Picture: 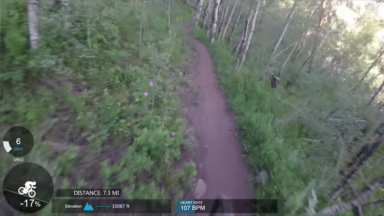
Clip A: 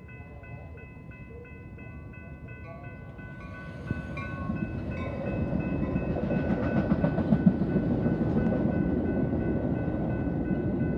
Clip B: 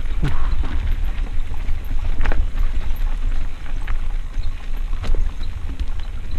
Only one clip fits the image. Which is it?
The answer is B